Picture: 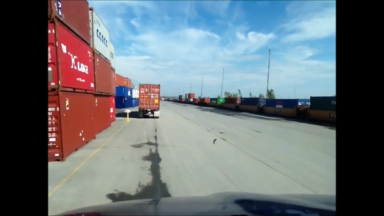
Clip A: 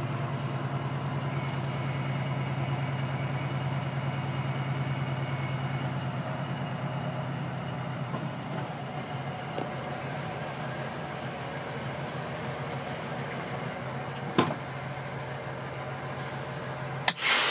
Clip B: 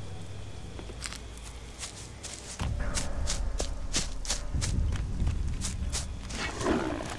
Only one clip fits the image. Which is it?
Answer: A